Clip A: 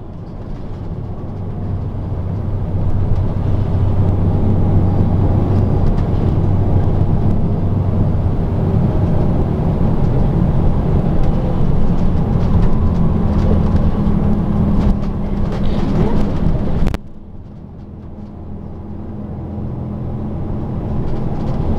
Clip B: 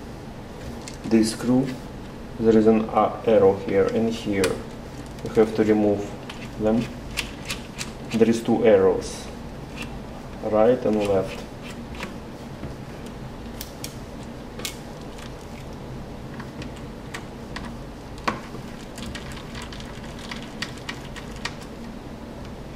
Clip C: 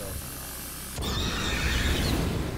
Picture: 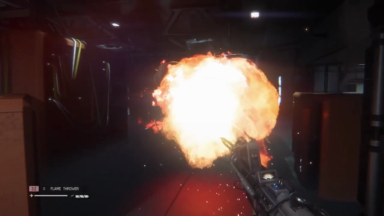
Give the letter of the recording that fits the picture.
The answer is C